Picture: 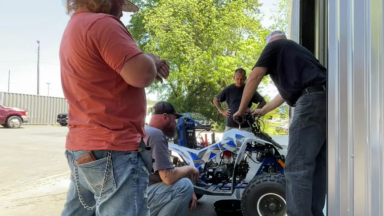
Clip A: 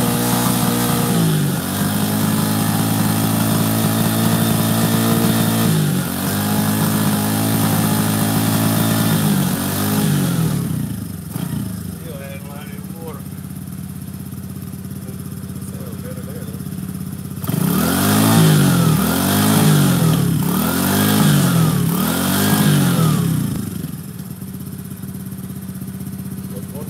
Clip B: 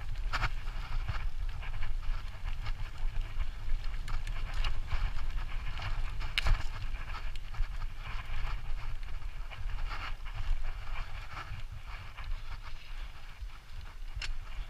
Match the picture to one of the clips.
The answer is A